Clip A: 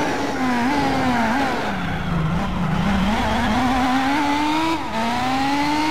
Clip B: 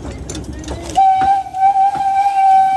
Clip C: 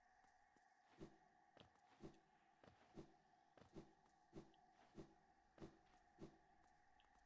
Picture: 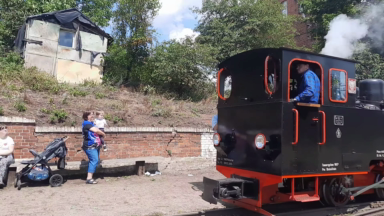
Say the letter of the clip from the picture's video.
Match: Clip B